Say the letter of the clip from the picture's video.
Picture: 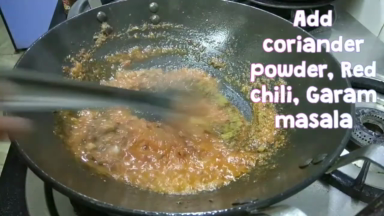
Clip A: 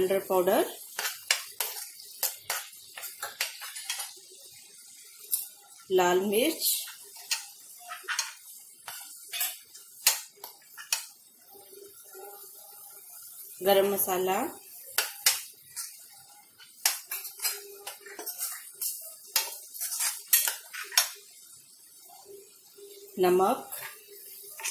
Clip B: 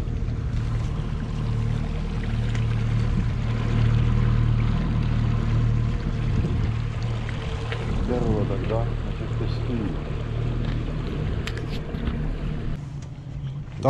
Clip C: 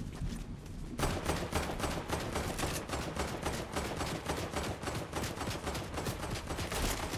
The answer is A